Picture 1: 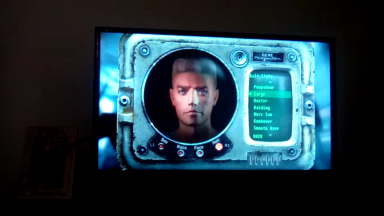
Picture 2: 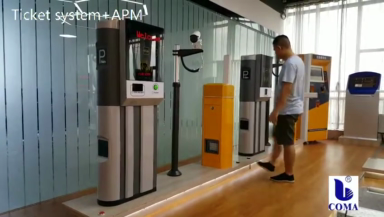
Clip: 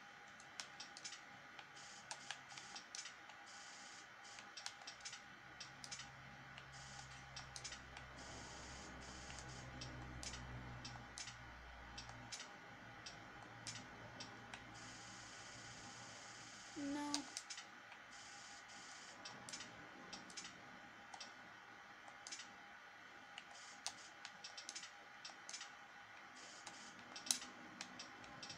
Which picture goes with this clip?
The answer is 1